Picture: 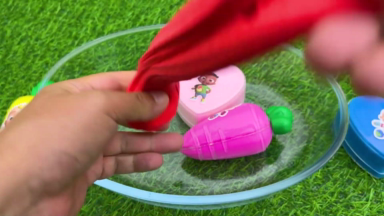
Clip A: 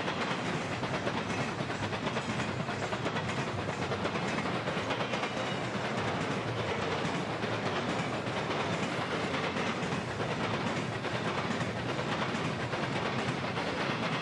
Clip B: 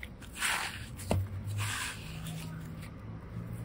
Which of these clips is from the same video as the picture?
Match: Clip B